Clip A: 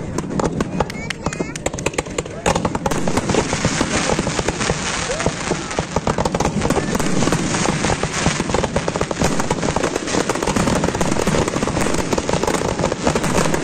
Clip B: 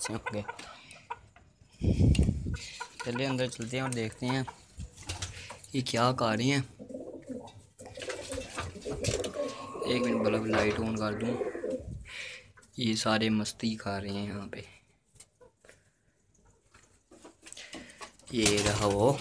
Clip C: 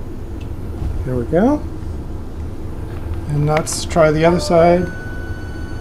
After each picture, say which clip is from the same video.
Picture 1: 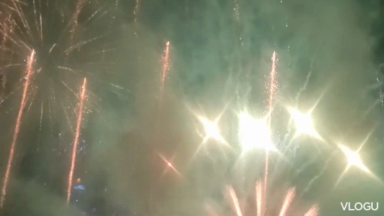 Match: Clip A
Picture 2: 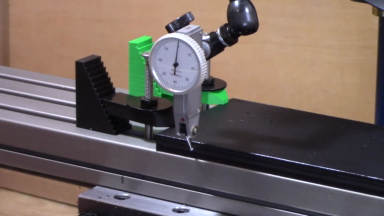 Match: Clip C